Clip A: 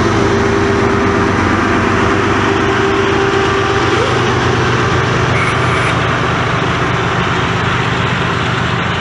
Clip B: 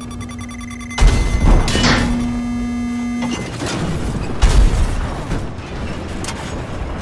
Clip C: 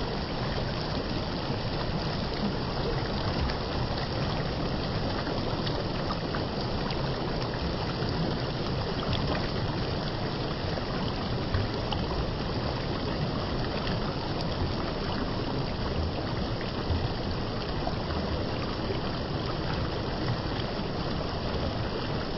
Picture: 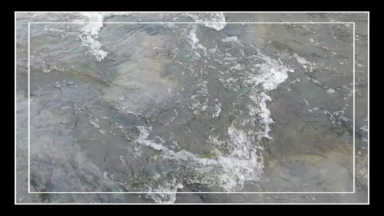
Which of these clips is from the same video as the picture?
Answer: C